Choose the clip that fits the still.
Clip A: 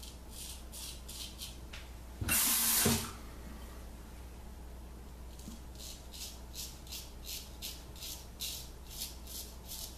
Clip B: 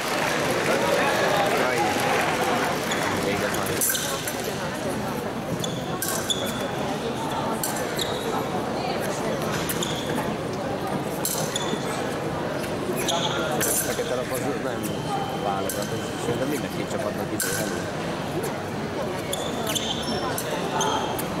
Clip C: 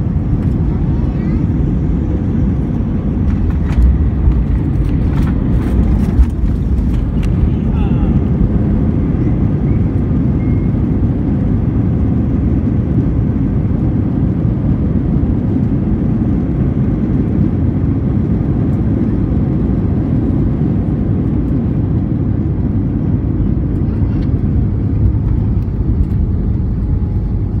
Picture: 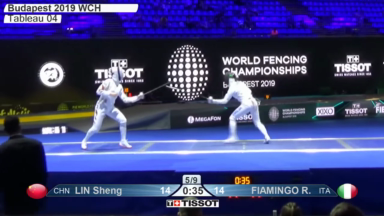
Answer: B